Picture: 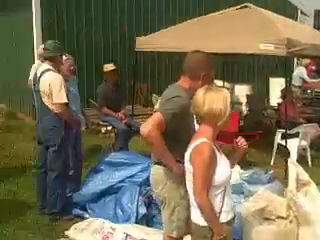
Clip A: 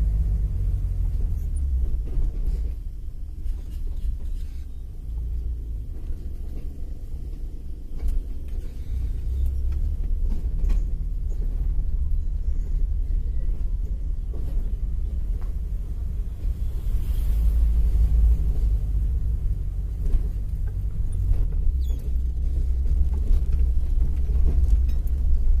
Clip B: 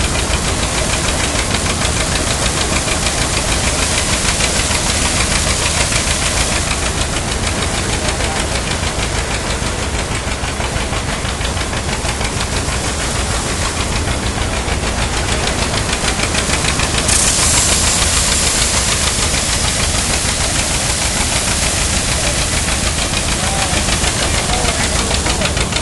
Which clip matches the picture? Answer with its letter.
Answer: B